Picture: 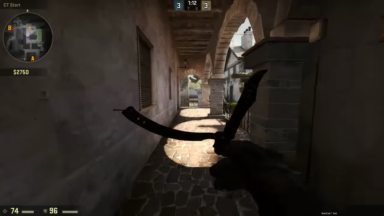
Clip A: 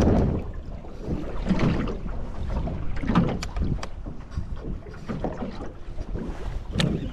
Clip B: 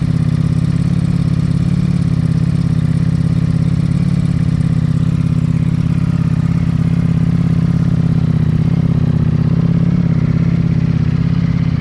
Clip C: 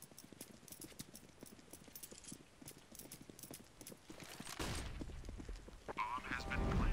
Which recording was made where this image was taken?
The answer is C